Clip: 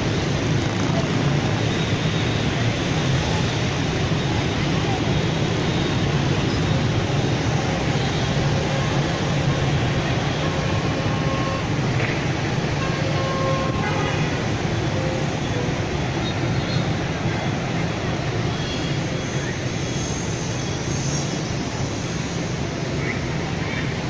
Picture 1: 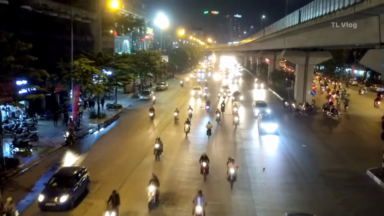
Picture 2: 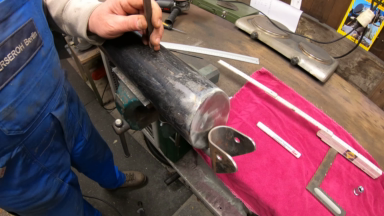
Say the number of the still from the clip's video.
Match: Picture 1